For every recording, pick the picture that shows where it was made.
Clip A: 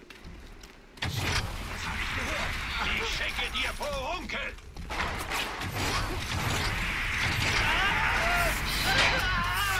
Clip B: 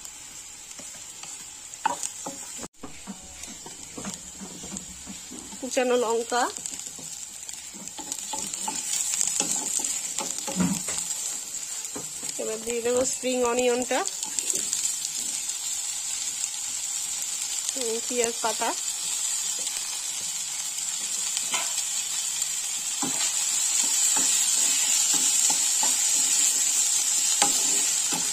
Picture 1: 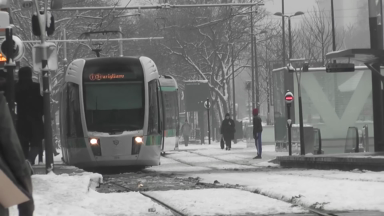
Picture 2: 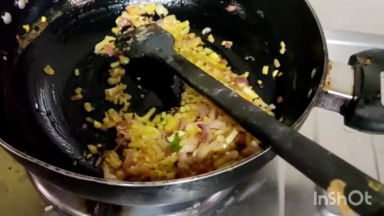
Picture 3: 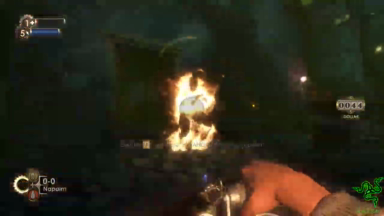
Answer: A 3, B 2